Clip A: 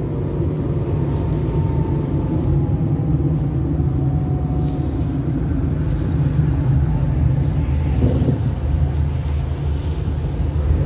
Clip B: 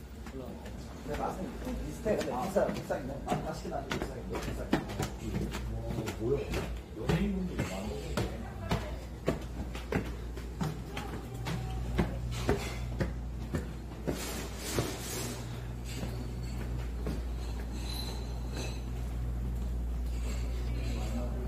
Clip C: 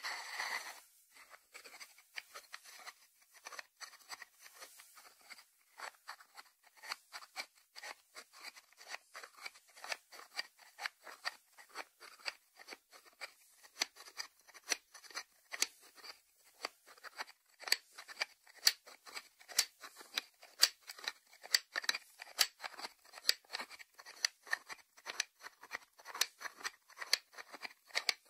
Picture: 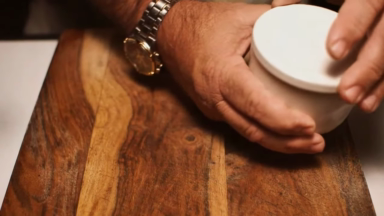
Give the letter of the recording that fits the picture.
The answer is C